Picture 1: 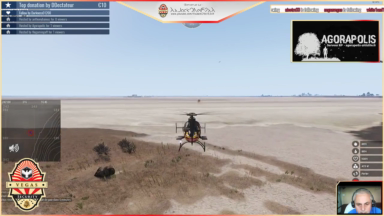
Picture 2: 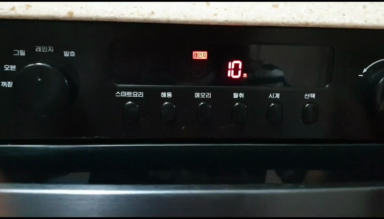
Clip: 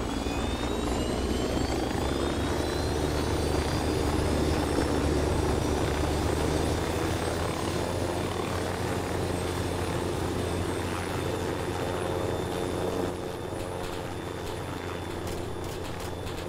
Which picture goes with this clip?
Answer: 1